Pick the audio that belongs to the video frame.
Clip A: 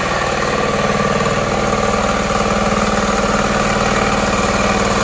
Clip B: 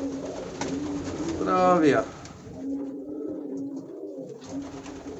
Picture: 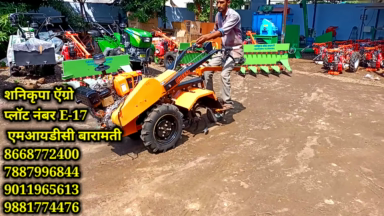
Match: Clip A